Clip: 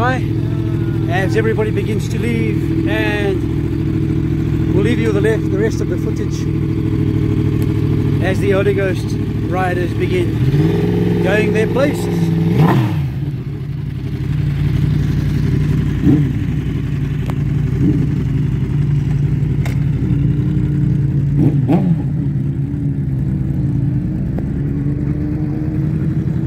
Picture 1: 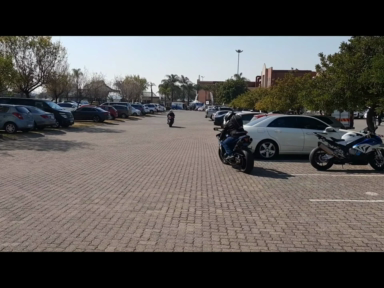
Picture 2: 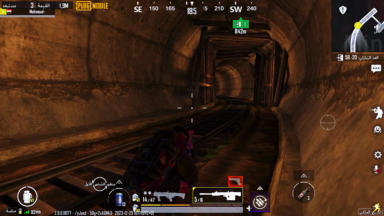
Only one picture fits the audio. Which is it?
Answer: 1